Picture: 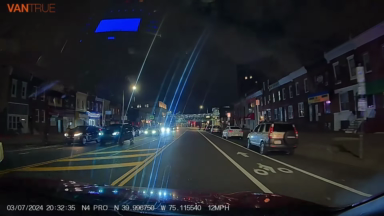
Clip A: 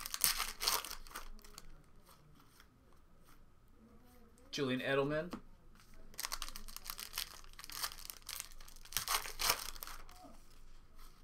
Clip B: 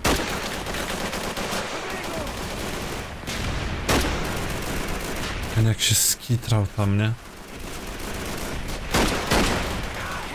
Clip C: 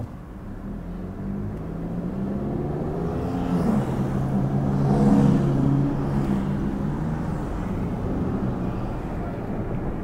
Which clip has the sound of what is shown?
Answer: C